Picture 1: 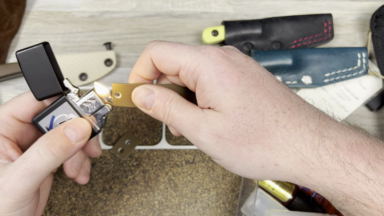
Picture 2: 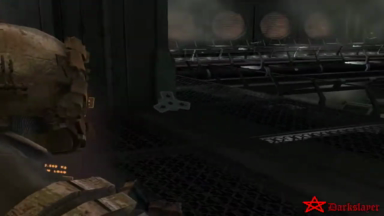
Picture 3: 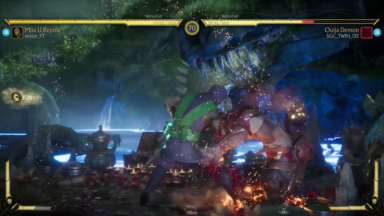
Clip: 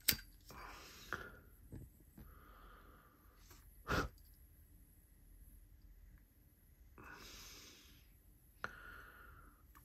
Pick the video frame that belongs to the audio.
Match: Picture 1